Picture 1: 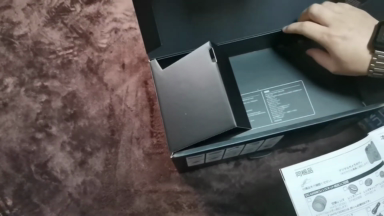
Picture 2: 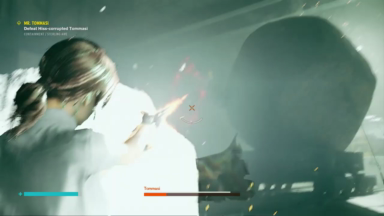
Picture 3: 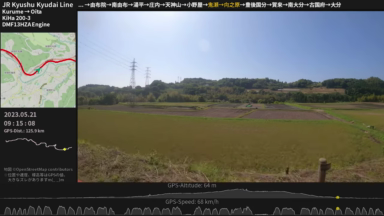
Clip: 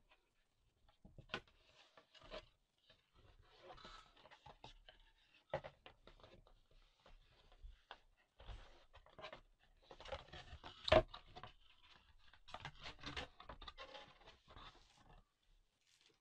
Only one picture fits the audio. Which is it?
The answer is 1